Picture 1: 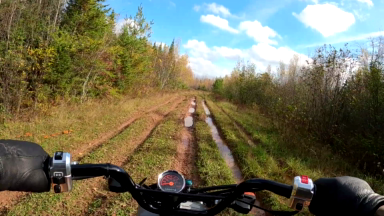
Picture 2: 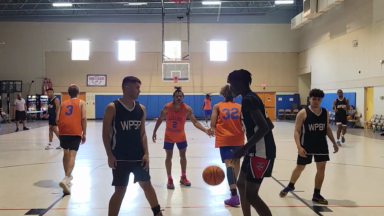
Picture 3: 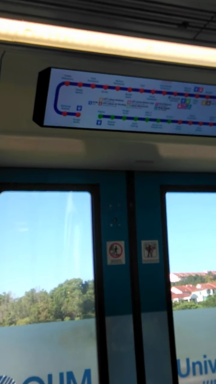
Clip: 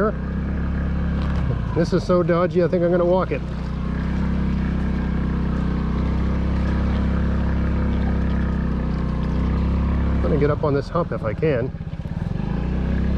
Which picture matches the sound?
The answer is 1